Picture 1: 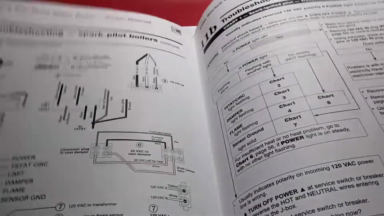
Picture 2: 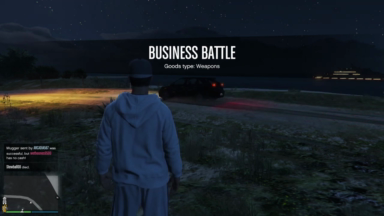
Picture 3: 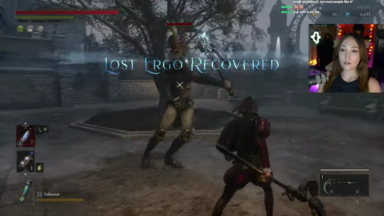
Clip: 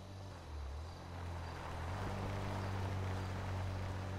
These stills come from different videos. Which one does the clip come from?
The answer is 2